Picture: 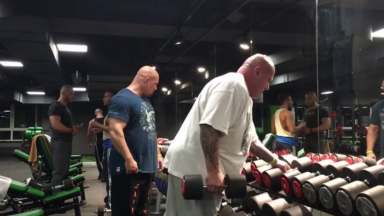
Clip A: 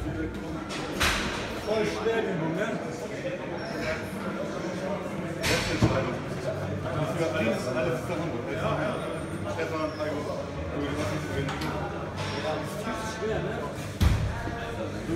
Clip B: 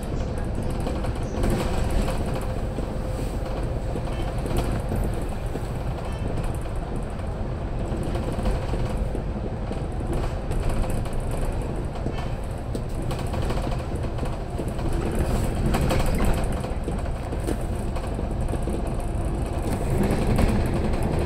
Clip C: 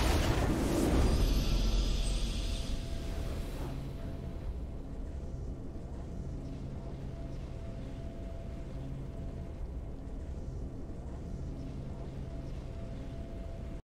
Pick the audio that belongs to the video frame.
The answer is A